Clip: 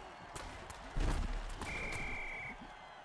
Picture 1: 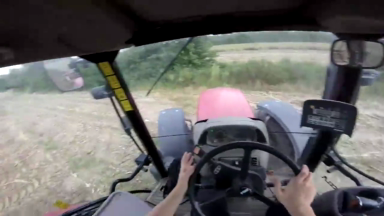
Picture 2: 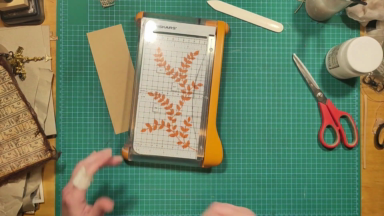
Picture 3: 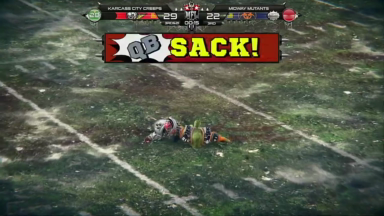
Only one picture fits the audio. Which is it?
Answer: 3